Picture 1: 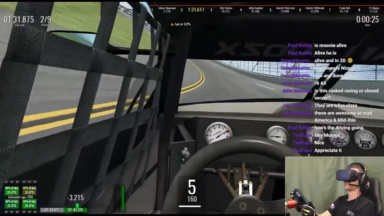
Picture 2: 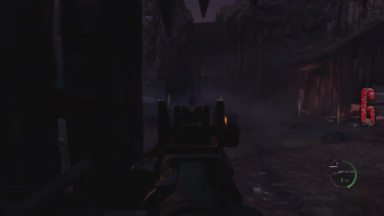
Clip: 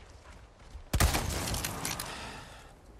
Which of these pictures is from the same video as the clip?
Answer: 2